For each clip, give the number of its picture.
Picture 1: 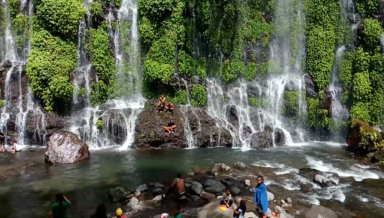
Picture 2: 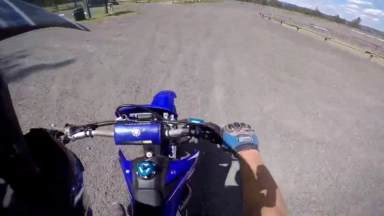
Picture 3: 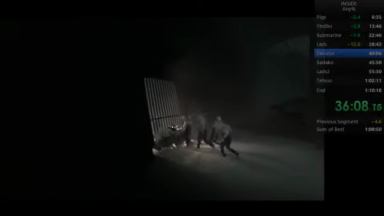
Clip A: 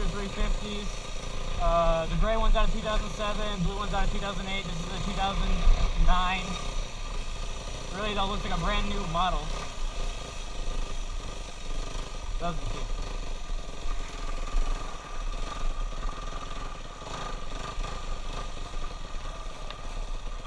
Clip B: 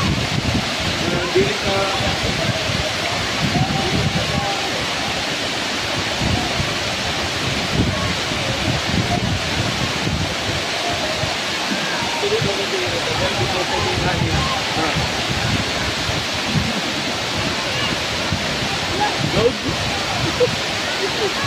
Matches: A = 2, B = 1